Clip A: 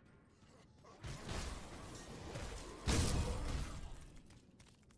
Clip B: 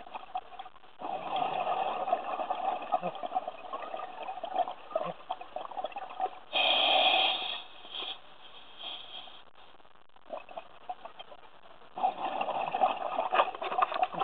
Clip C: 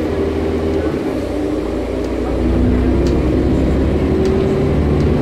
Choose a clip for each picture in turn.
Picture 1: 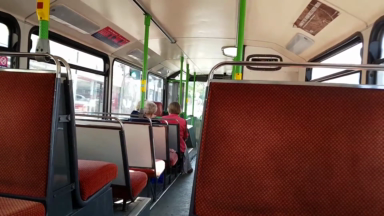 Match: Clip C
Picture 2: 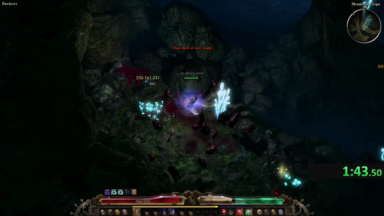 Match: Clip A